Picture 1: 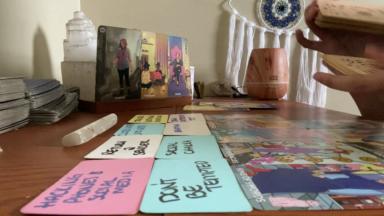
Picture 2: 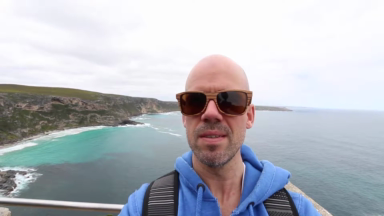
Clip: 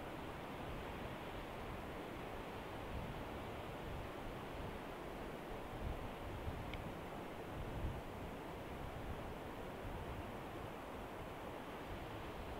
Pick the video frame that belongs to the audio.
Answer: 2